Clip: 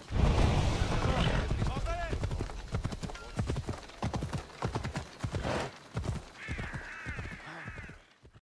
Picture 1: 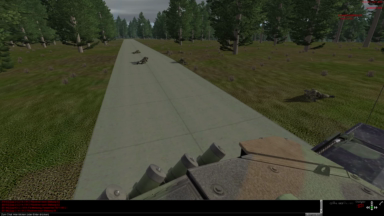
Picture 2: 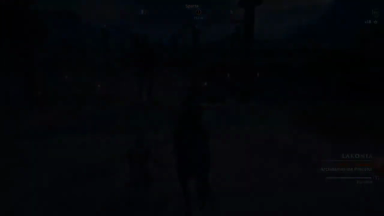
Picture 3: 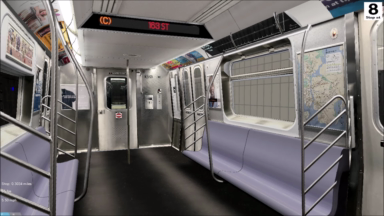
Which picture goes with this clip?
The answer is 2